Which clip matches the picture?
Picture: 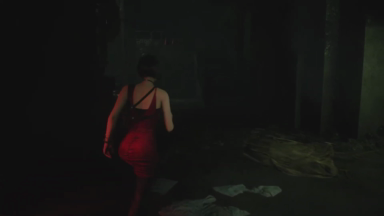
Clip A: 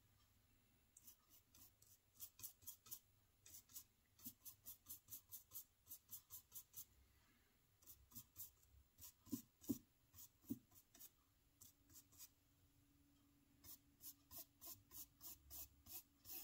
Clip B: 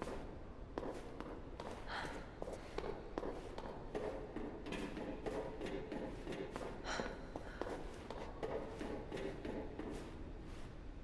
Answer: B